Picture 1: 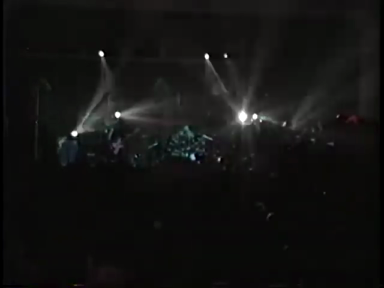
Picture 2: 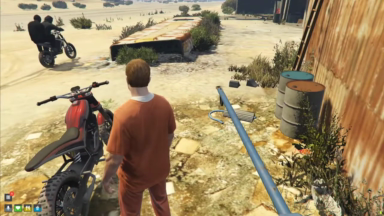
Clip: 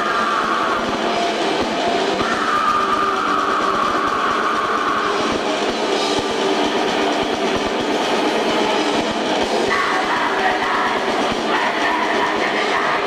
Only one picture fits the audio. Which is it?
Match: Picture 1